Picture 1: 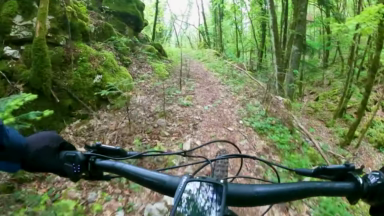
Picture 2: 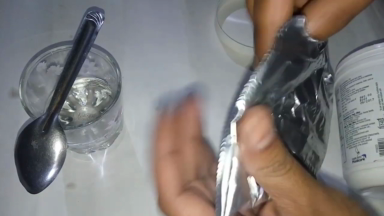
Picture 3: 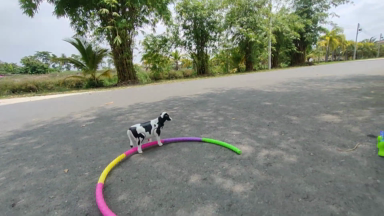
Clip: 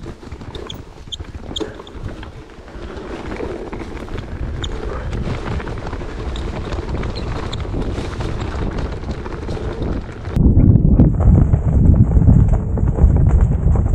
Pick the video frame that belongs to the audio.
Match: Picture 1